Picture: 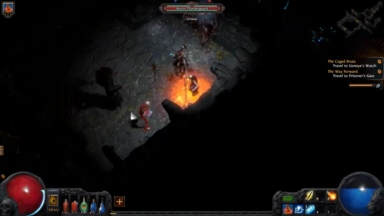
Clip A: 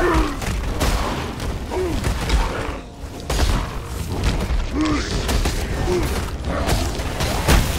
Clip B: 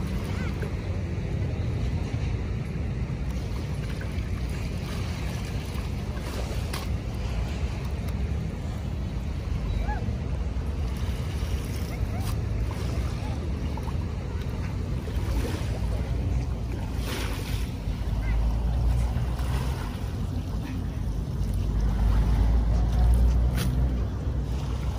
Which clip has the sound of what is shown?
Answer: A